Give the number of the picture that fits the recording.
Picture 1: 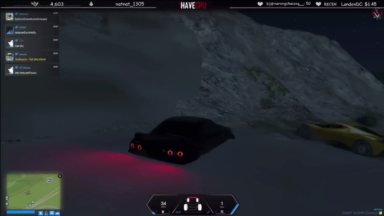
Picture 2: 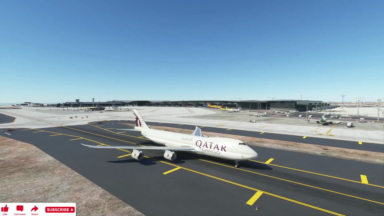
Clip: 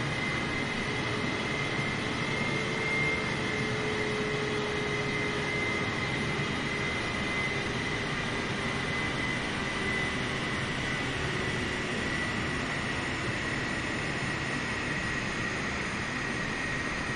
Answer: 2